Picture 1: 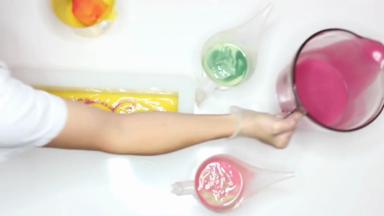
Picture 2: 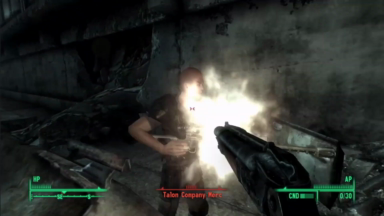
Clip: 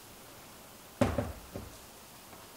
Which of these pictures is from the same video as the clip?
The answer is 1